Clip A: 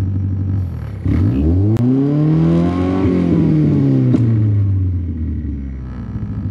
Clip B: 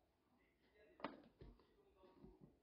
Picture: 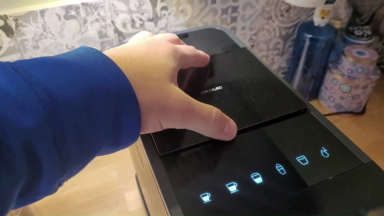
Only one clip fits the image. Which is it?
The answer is B